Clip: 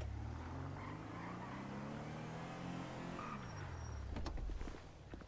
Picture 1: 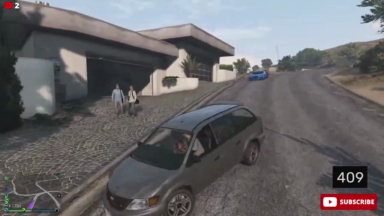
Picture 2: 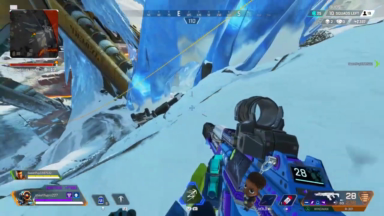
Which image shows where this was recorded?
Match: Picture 1